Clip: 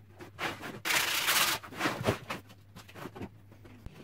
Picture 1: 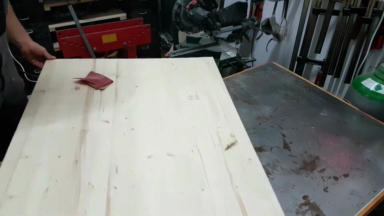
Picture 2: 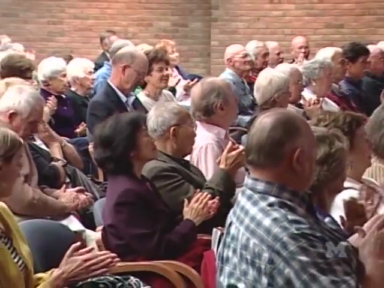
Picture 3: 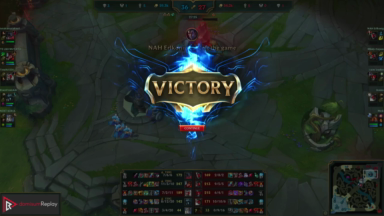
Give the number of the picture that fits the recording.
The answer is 1